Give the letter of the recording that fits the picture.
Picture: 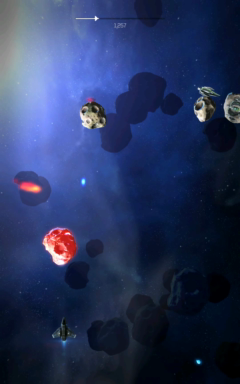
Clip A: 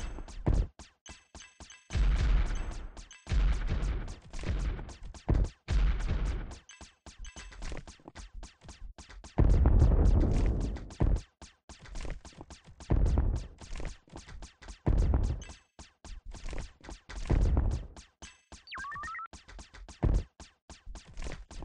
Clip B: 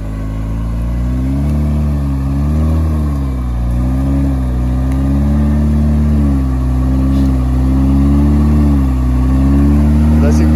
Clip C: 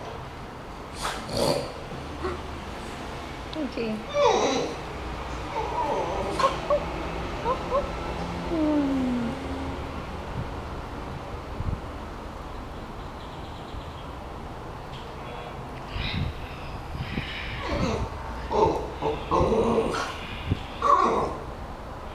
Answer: A